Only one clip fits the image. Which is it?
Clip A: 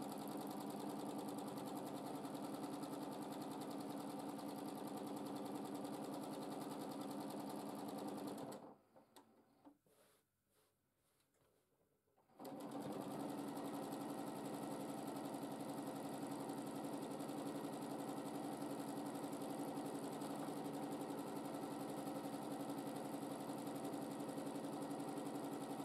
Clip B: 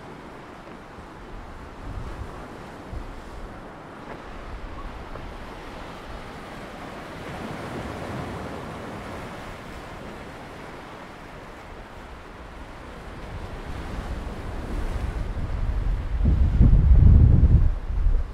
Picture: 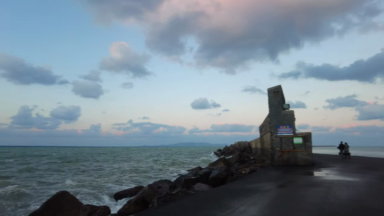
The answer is B